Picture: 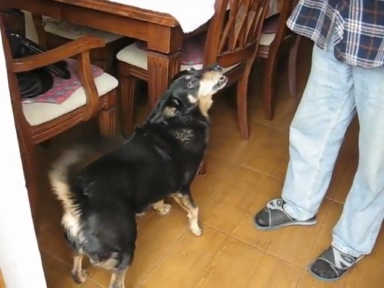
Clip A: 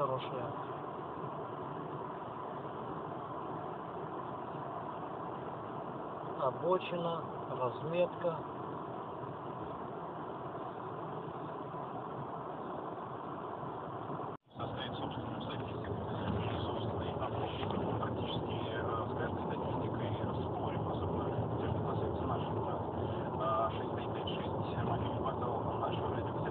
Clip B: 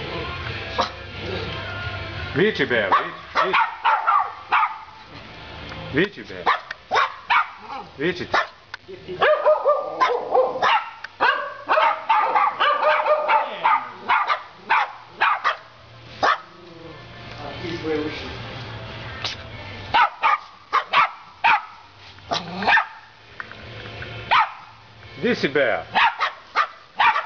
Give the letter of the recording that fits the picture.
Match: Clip B